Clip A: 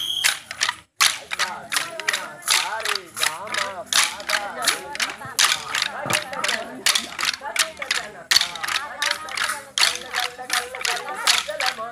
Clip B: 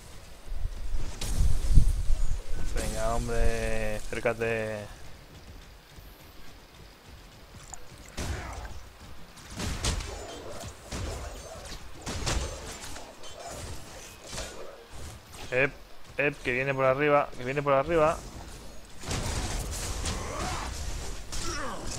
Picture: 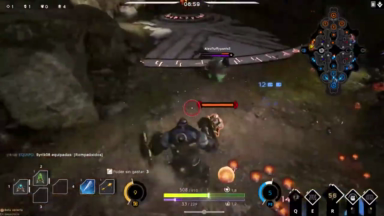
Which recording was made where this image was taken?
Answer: B